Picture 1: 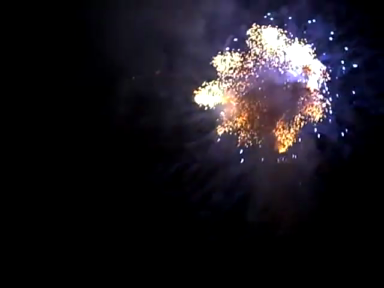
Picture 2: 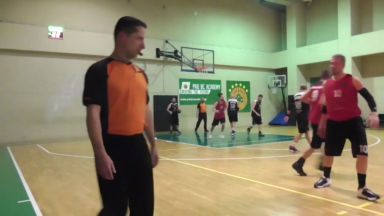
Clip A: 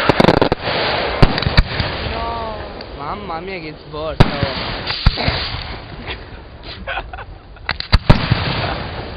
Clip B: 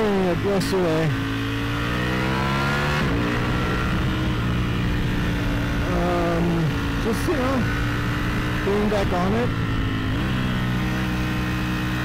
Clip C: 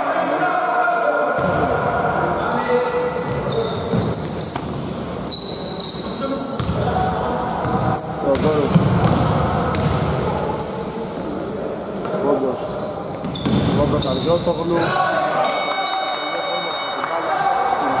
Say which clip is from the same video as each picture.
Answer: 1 A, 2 C